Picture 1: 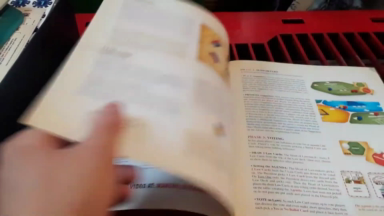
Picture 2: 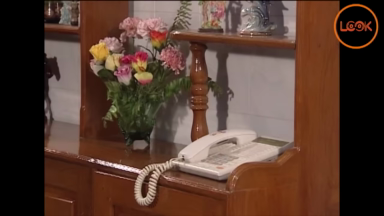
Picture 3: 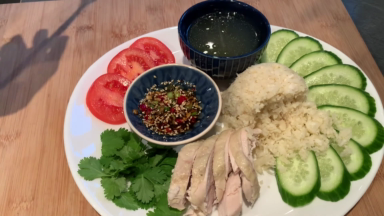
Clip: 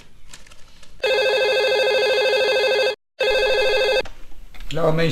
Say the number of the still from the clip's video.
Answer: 2